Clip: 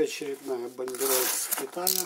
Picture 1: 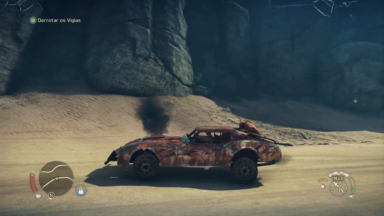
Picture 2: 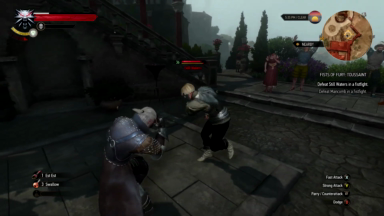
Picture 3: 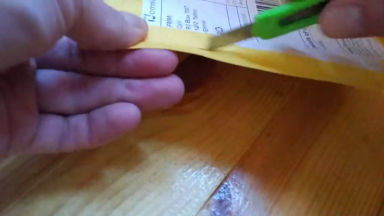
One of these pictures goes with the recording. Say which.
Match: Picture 3